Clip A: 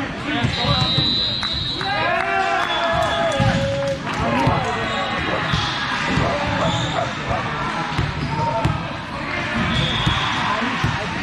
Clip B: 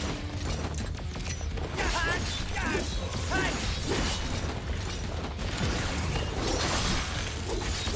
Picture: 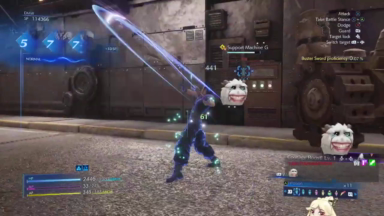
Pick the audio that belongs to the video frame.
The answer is B